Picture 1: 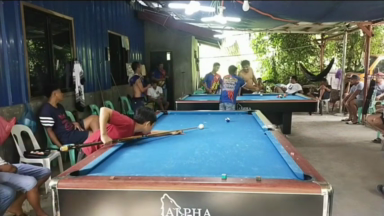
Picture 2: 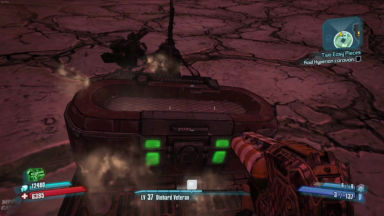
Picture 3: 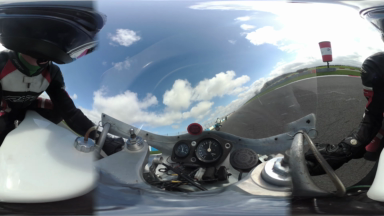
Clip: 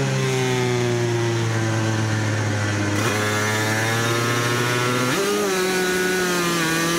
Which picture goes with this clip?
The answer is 3